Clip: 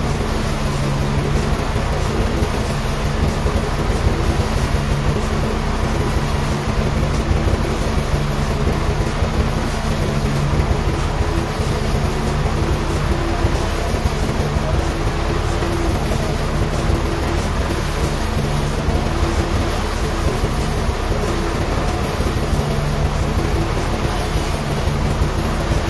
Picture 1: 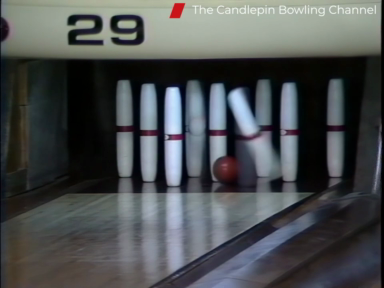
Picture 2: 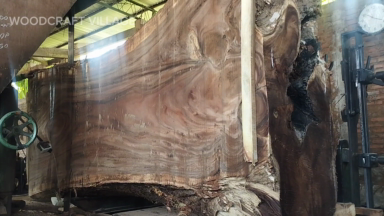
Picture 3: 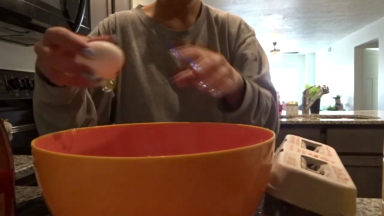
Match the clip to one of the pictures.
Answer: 2